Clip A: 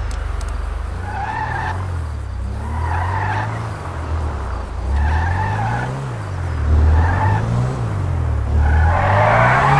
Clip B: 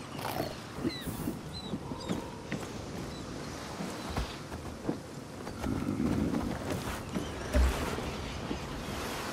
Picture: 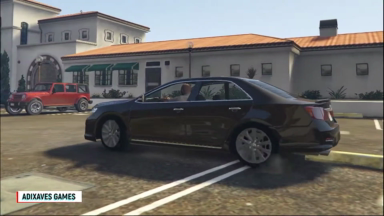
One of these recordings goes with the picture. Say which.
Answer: A